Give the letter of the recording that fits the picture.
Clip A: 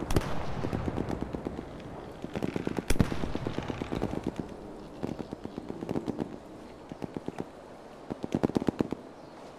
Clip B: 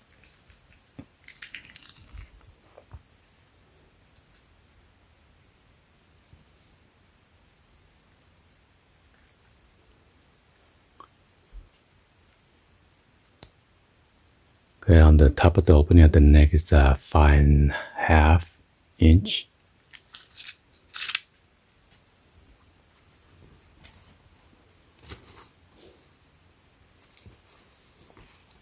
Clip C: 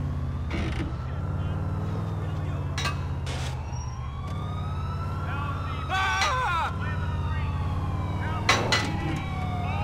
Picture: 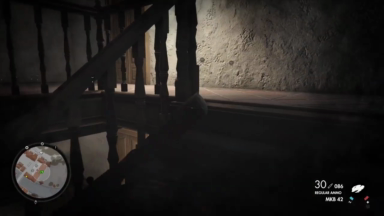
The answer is A